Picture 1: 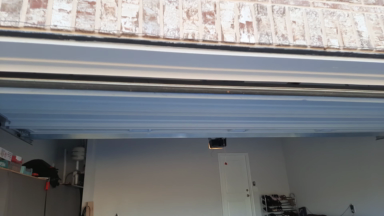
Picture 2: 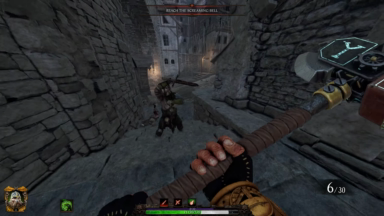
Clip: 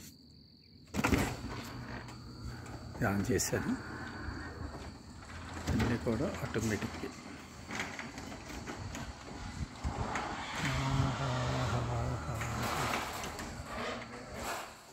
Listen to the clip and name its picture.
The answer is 1